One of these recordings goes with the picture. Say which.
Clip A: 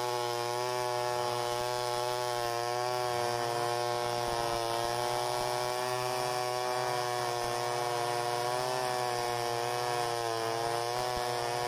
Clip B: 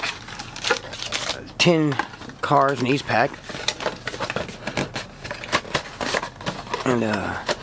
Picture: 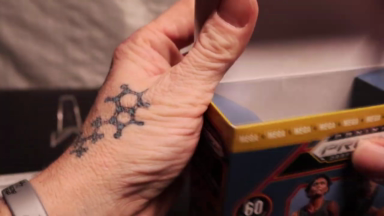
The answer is B